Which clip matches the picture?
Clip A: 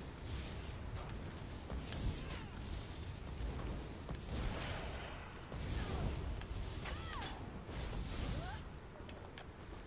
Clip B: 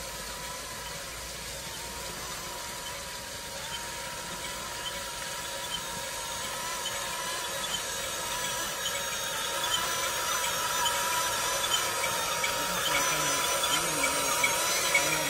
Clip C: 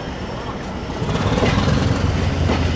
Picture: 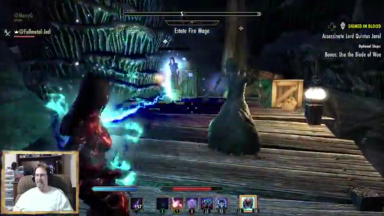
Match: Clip A